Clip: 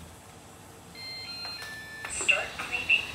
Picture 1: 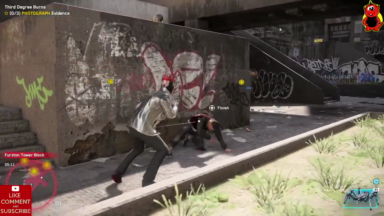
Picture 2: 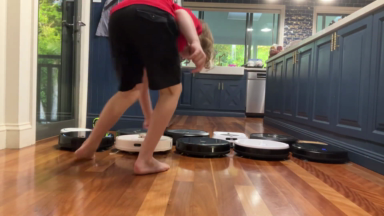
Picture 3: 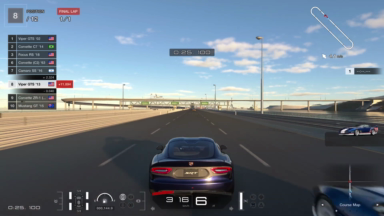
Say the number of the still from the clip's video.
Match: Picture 2